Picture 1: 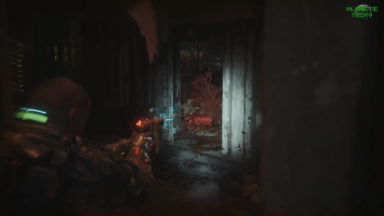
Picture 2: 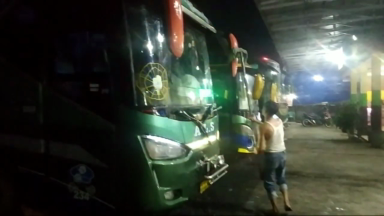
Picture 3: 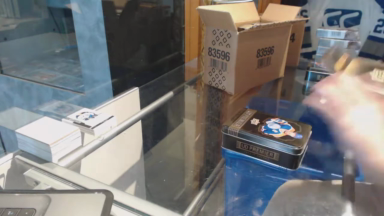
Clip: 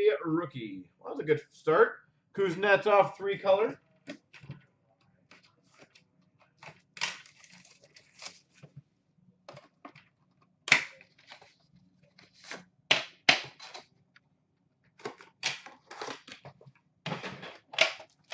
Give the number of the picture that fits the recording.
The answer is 3